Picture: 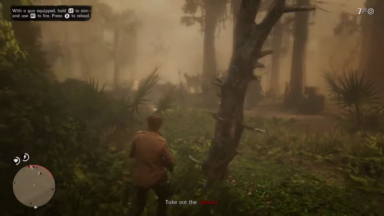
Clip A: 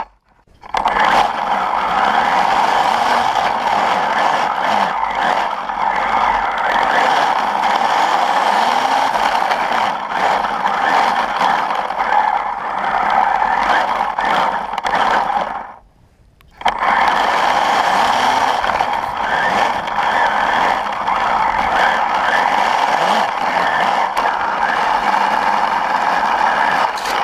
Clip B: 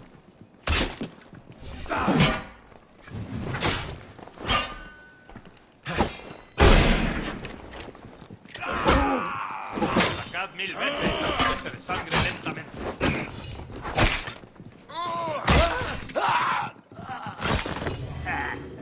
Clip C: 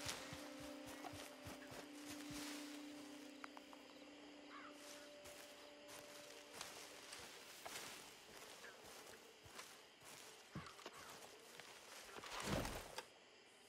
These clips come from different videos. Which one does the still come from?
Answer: C